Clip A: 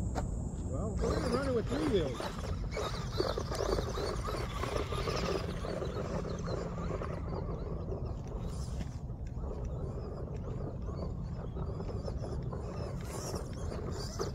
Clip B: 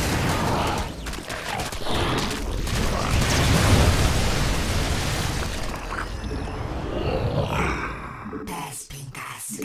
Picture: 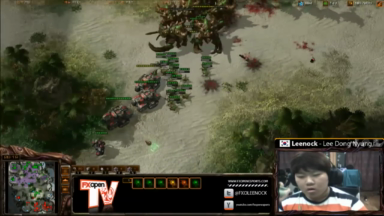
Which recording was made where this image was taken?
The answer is B